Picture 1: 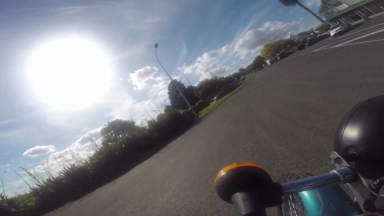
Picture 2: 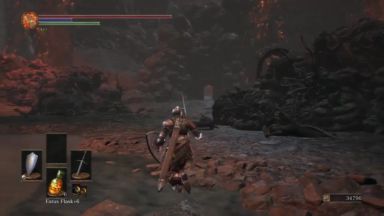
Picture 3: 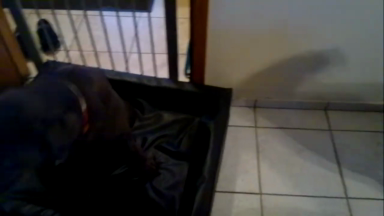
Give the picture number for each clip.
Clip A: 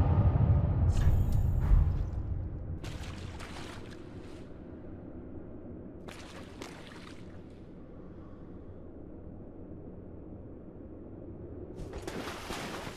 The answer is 2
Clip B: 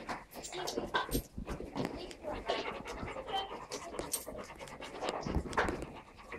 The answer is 3